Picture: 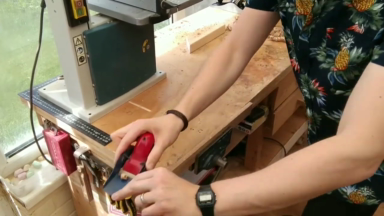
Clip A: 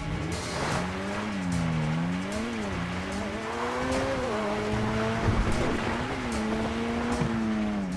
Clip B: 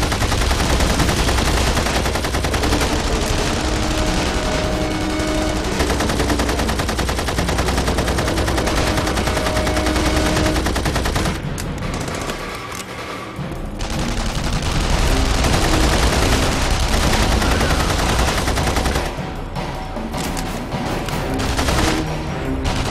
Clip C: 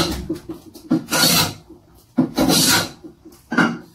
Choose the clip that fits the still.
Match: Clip C